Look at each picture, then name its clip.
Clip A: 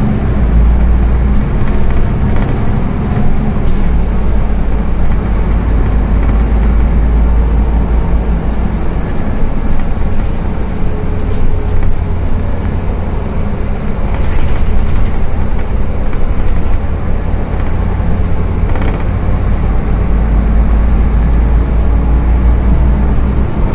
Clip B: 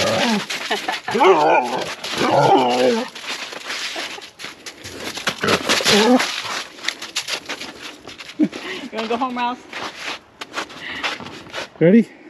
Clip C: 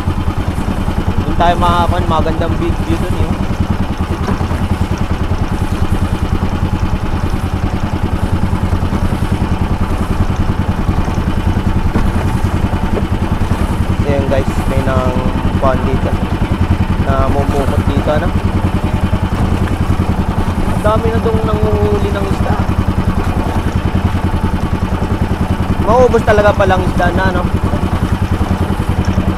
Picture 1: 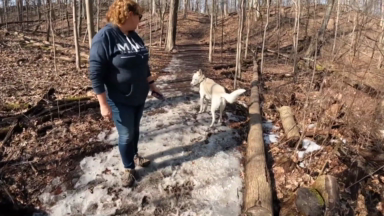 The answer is B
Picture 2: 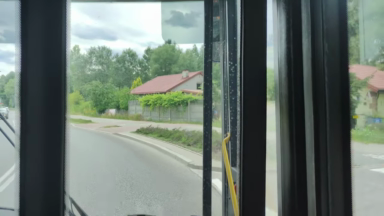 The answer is A